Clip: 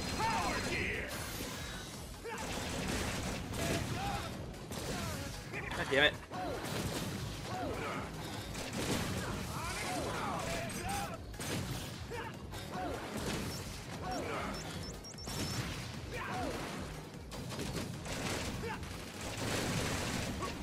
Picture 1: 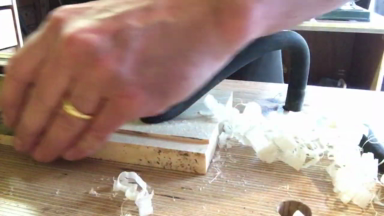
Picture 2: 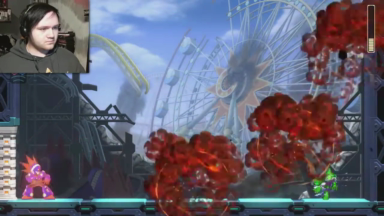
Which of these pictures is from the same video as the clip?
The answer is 2